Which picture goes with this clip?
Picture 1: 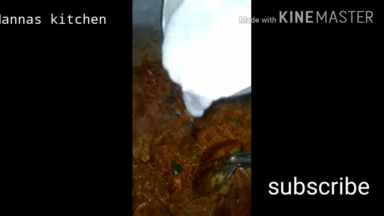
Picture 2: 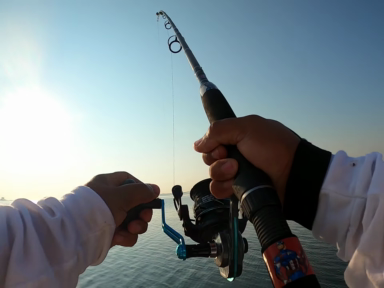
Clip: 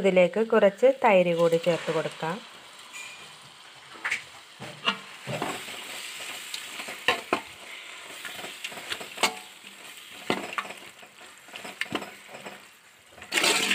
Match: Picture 1